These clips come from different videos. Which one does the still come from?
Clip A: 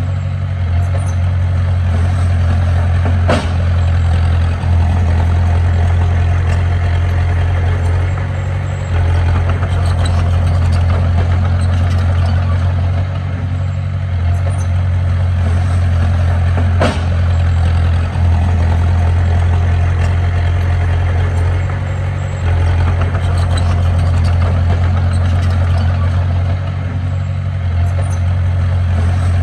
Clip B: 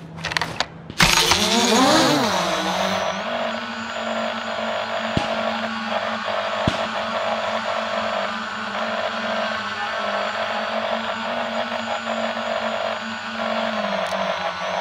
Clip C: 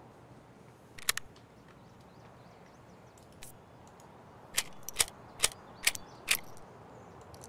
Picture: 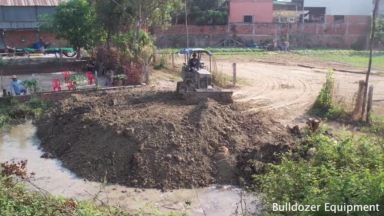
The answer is A